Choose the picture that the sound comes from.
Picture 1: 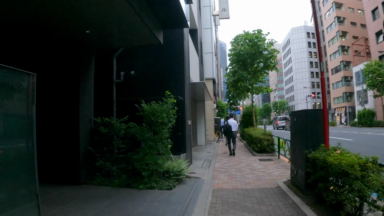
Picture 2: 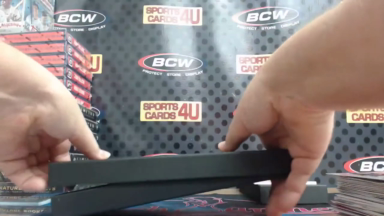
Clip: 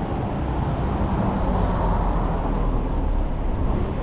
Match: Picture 1